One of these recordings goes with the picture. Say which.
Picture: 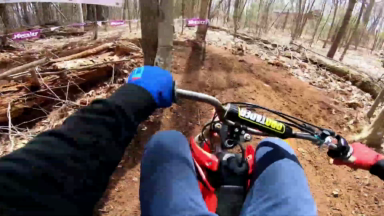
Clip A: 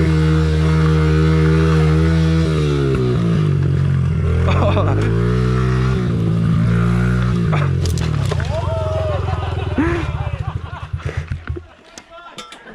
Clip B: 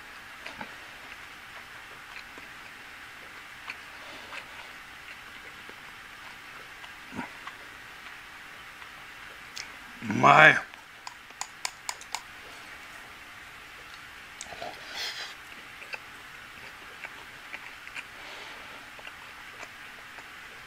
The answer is A